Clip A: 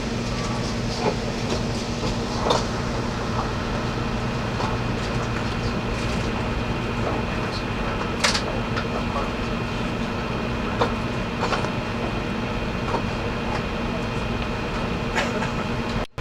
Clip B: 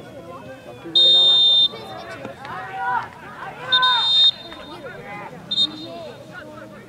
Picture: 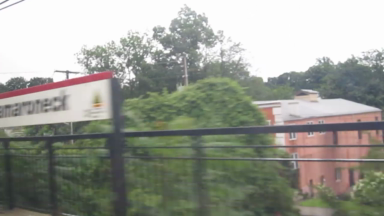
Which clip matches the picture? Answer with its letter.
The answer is A